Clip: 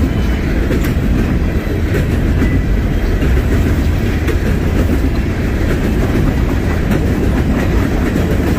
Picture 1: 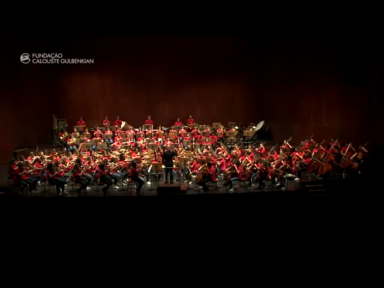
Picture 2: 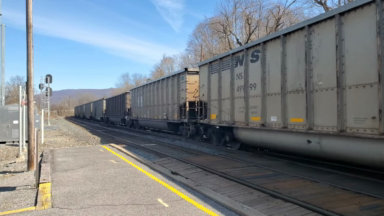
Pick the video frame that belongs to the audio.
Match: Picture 2